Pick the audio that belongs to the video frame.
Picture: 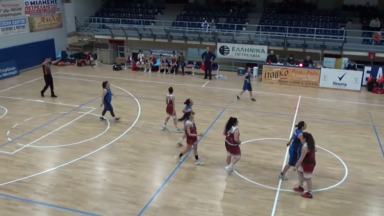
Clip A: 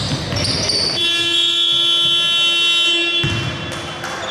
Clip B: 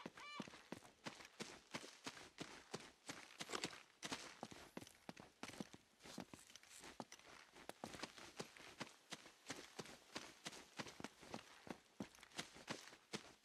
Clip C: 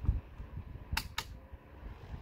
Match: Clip A